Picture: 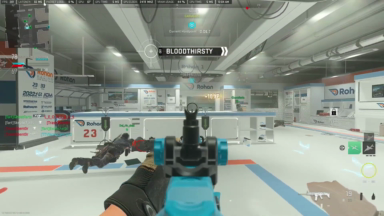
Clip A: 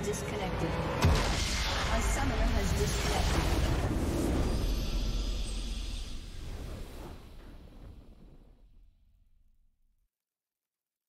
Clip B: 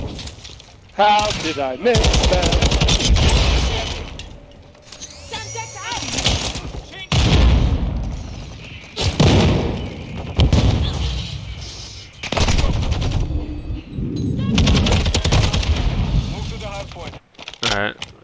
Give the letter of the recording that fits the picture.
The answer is B